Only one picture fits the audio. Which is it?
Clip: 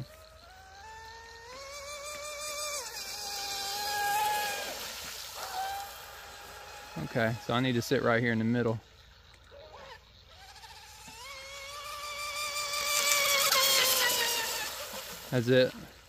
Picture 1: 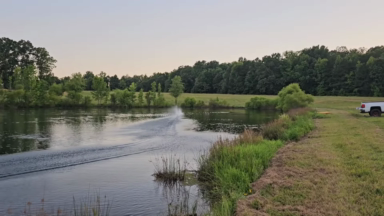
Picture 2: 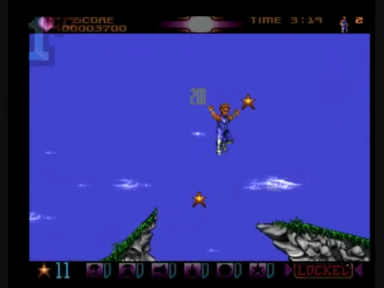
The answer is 1